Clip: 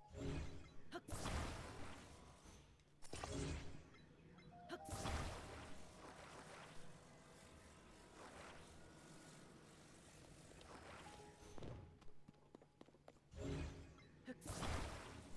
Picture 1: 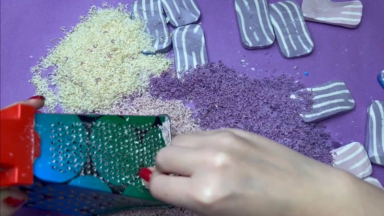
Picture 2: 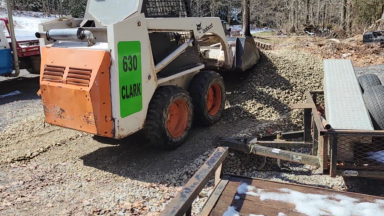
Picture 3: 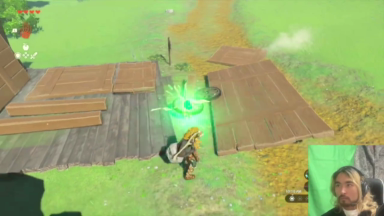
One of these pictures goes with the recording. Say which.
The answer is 3